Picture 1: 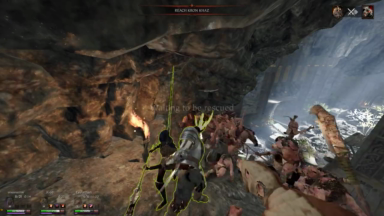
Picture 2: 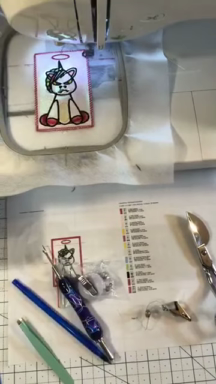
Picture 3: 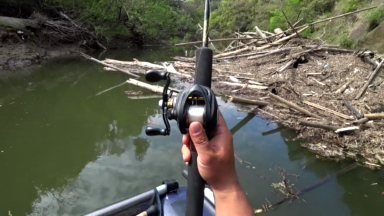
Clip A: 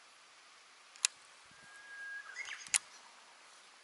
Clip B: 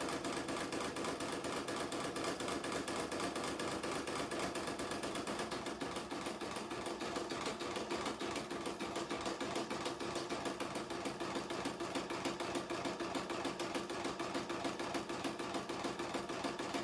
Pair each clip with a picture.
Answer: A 3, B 2